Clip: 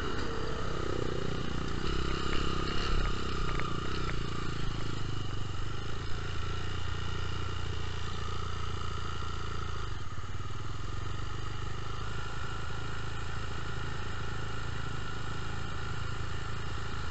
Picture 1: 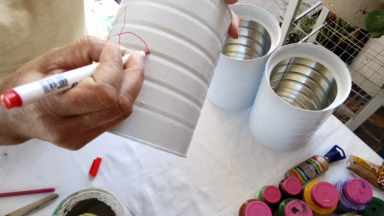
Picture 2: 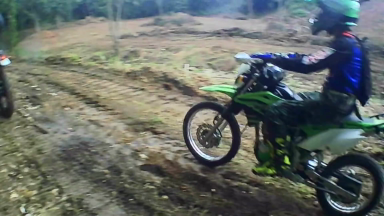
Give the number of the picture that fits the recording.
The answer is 2